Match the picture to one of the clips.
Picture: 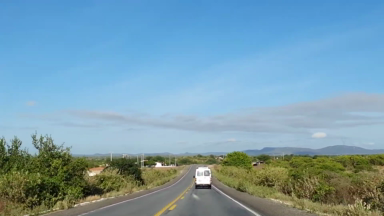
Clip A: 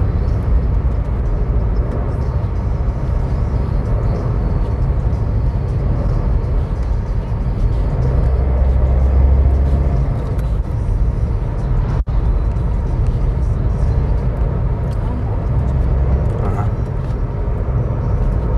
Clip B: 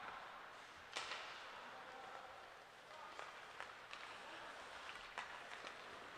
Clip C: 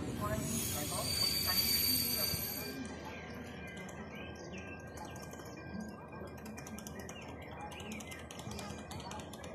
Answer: A